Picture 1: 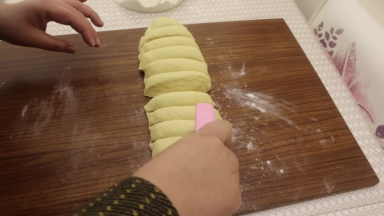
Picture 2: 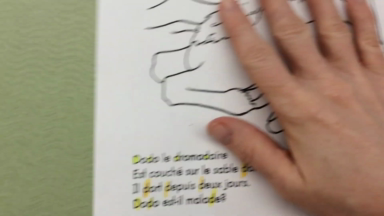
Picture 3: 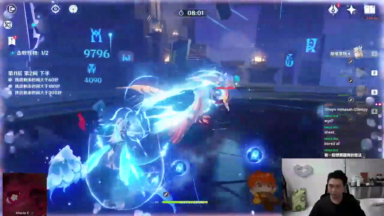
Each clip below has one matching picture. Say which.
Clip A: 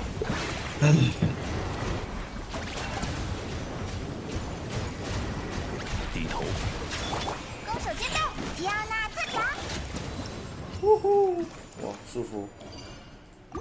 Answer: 3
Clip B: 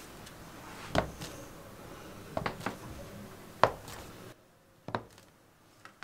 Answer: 1